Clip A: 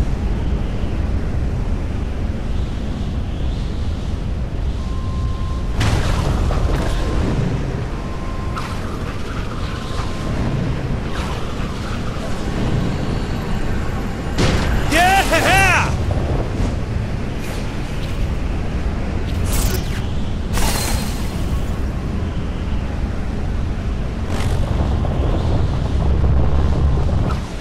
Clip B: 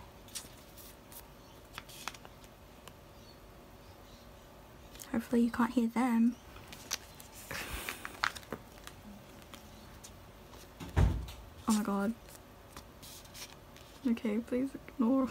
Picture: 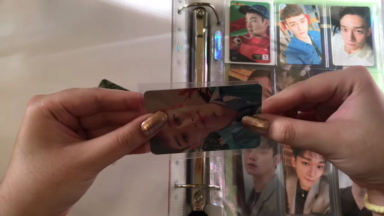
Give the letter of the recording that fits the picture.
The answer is B